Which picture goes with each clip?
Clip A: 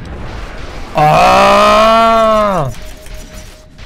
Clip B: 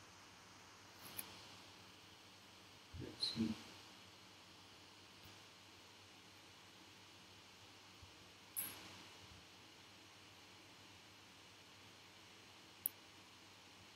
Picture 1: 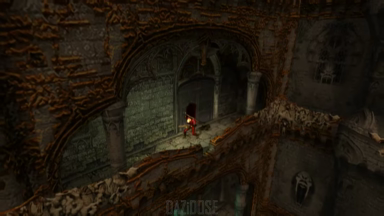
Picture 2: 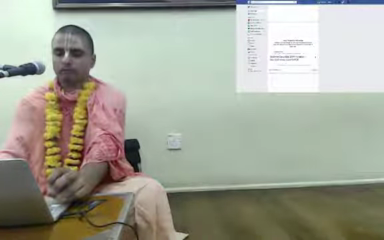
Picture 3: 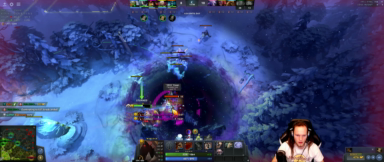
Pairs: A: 3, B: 2